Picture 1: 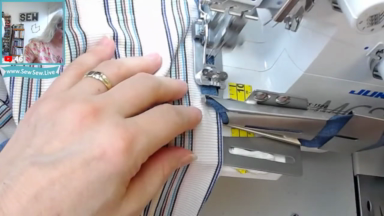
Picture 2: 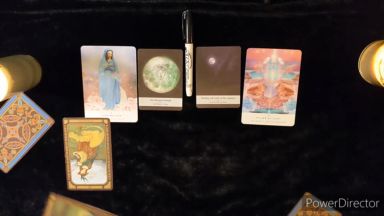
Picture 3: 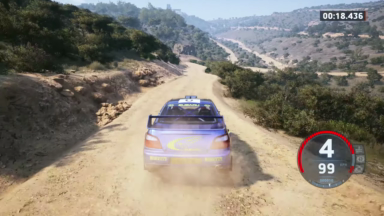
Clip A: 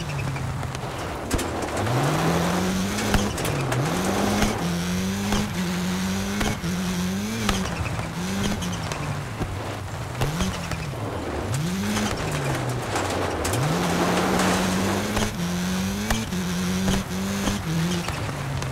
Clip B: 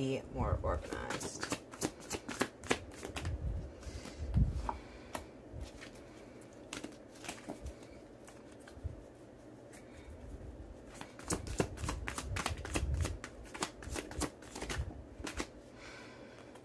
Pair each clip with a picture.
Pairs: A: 3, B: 2